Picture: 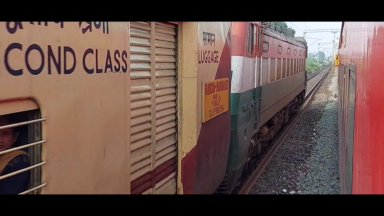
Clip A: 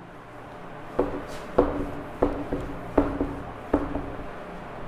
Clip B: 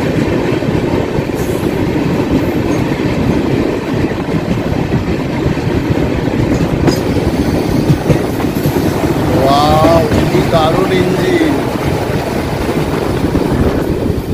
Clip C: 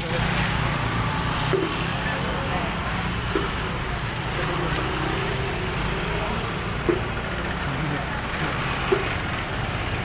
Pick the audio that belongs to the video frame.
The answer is B